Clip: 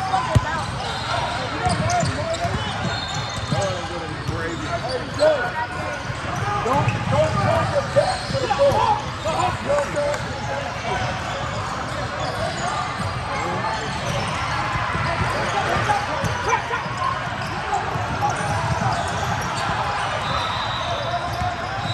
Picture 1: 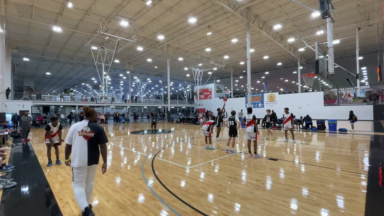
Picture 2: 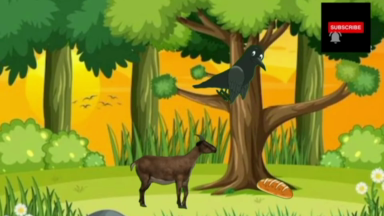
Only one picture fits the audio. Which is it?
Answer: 1